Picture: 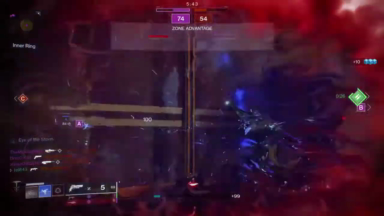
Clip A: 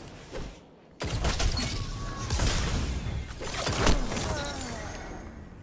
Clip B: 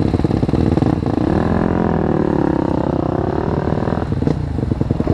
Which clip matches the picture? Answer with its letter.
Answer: A